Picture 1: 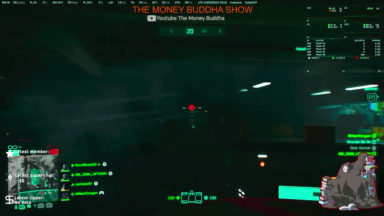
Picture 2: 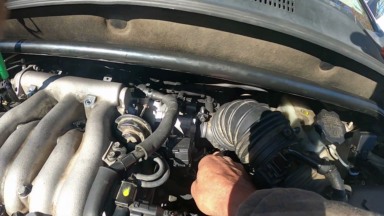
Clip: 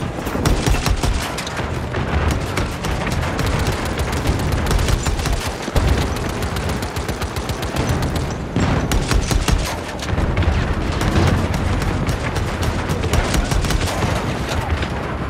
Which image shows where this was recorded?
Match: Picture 1